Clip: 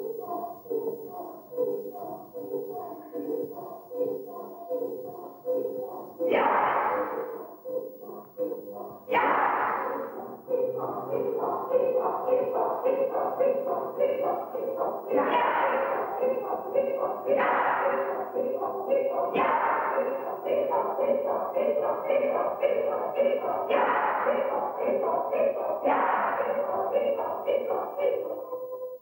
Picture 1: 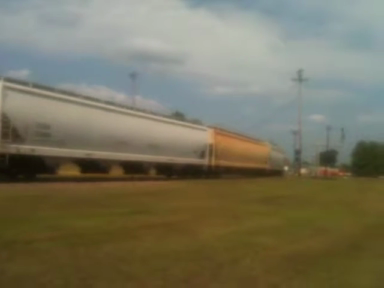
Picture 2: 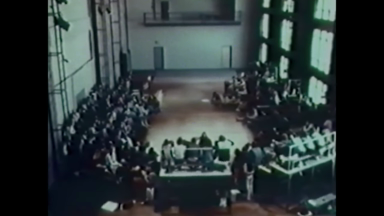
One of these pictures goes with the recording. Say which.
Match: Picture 2